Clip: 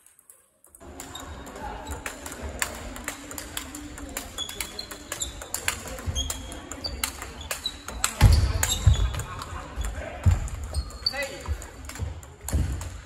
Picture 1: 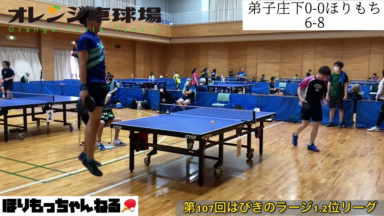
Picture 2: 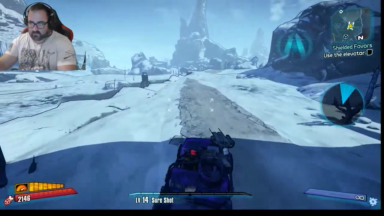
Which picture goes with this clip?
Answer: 1